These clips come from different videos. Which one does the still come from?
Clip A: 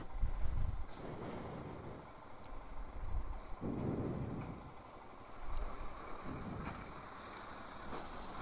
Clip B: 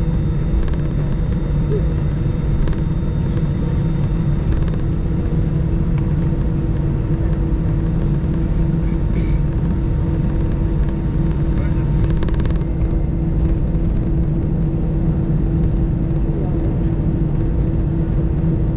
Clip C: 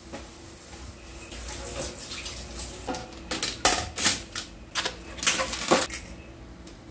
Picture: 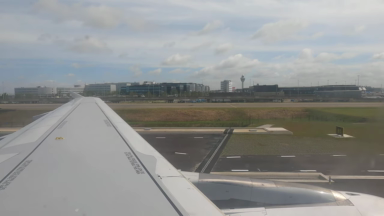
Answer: B